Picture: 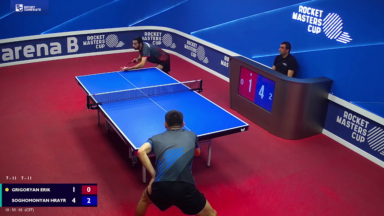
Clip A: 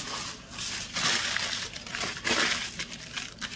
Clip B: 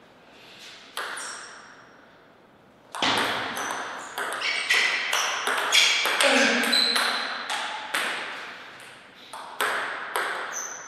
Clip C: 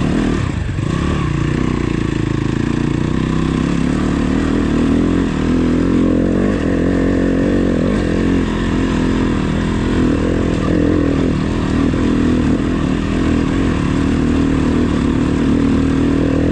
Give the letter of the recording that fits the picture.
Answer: B